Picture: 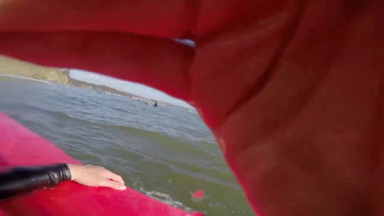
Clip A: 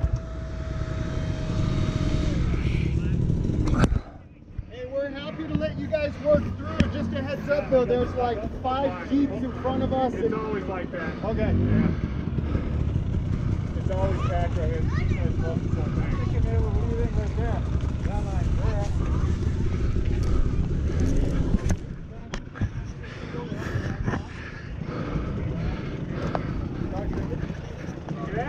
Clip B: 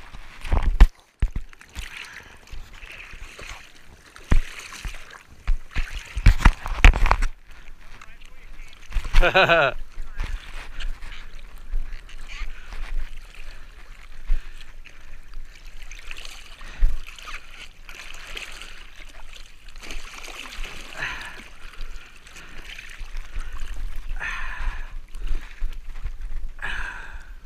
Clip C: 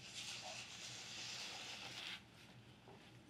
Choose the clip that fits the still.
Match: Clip B